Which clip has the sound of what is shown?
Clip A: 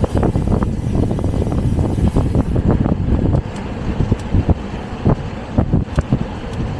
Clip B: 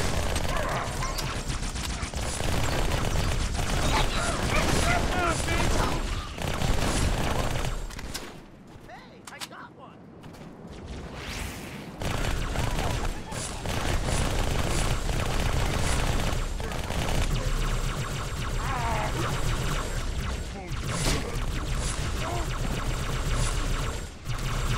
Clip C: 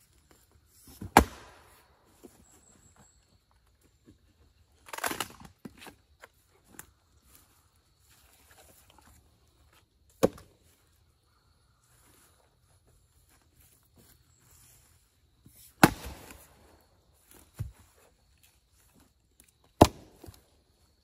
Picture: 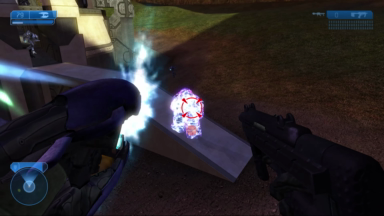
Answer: B